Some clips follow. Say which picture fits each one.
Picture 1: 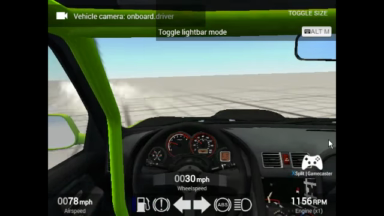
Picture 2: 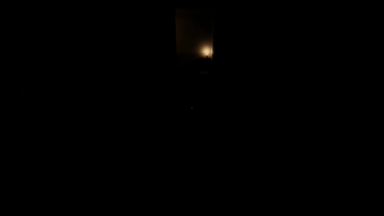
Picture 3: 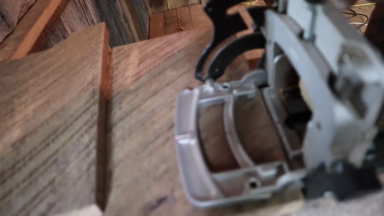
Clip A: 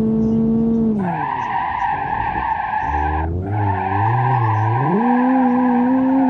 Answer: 1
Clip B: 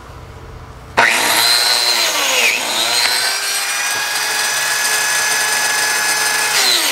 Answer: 3